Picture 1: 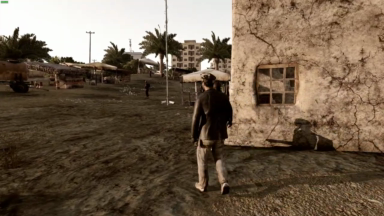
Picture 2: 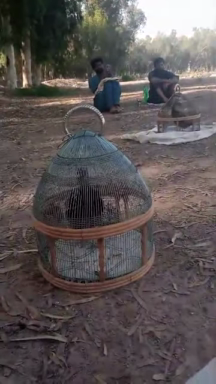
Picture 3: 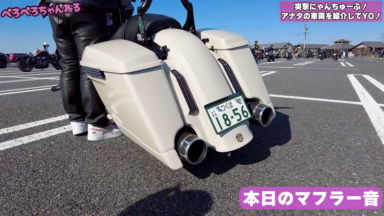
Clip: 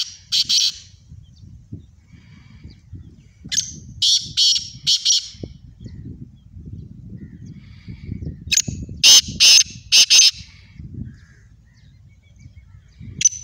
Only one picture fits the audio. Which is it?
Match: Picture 2